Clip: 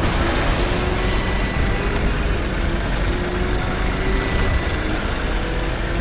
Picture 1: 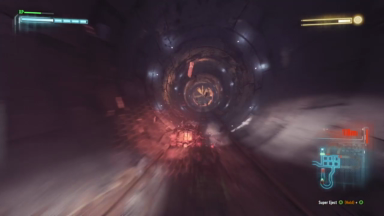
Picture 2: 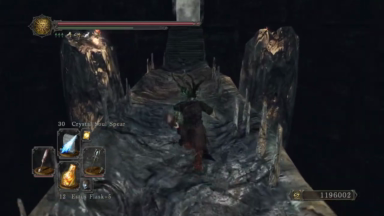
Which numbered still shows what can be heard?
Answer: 1